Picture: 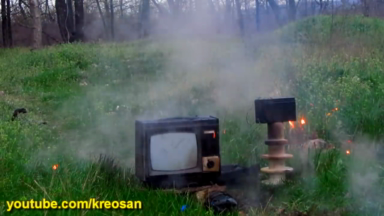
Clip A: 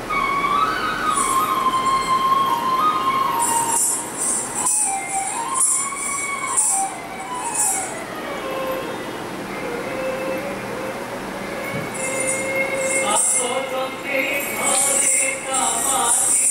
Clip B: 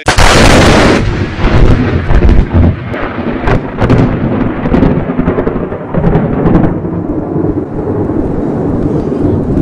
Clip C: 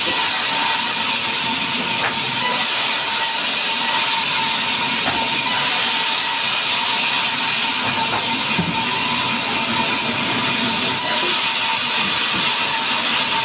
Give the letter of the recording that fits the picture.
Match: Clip B